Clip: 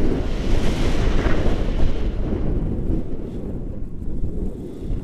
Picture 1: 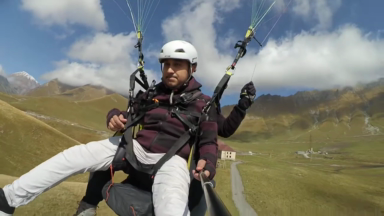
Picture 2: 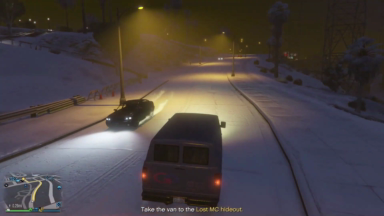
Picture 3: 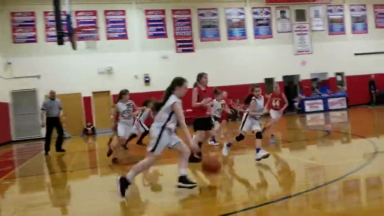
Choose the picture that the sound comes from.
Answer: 1